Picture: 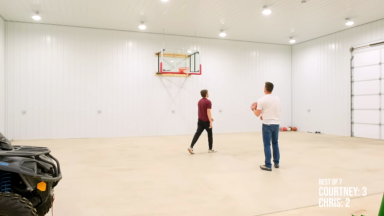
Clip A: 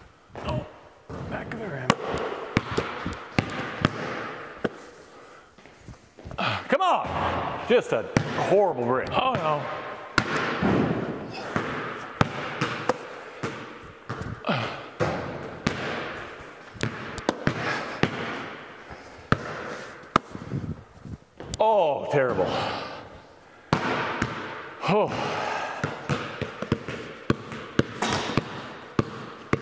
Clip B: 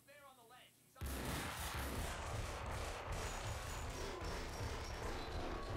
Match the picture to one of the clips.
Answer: A